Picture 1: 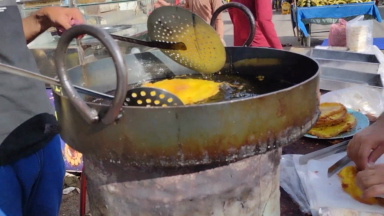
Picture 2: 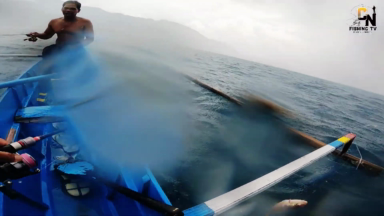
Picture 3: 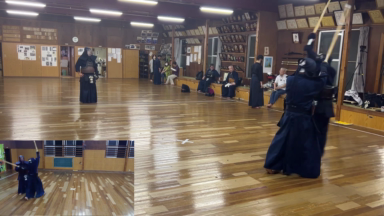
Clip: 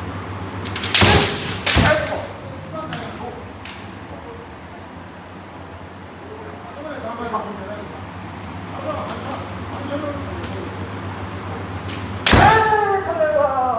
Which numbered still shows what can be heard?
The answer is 3